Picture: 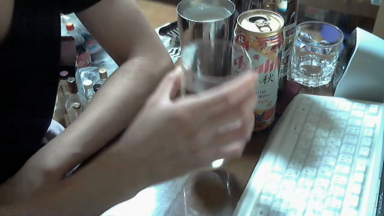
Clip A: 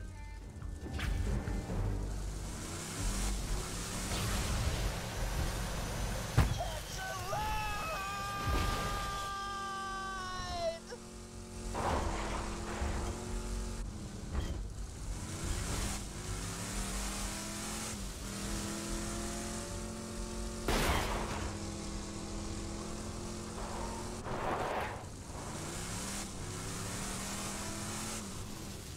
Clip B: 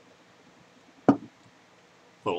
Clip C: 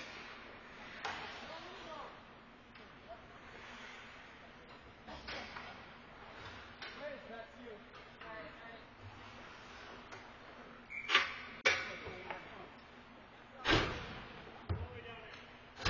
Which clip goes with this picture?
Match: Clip B